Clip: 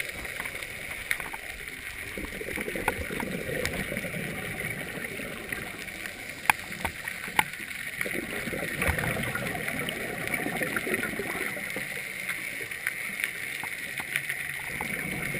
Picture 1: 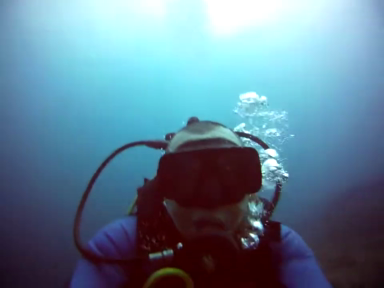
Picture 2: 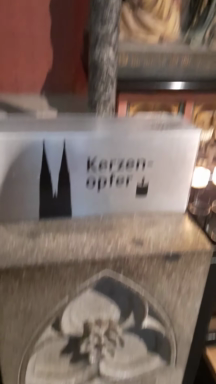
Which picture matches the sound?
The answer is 1